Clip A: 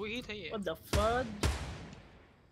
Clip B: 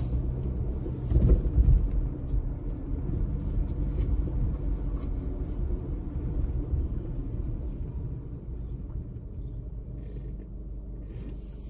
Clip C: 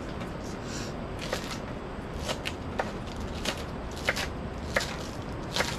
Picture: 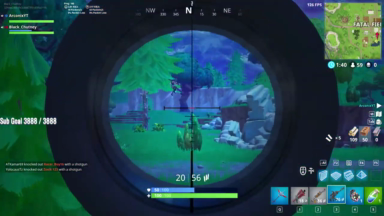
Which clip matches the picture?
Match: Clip A